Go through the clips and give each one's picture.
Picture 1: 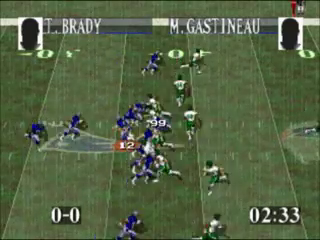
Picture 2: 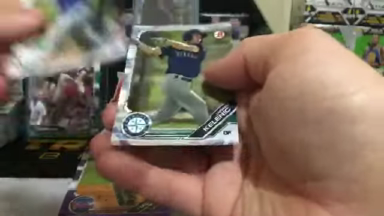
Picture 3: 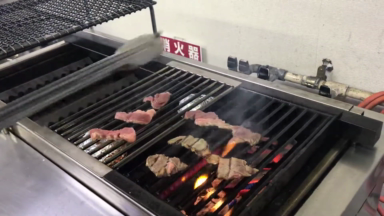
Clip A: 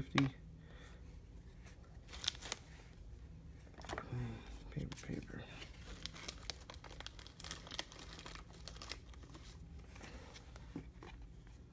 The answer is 2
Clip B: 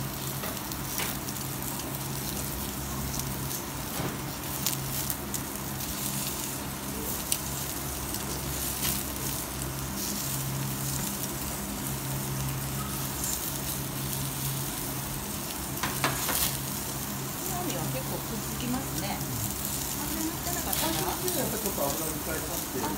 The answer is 3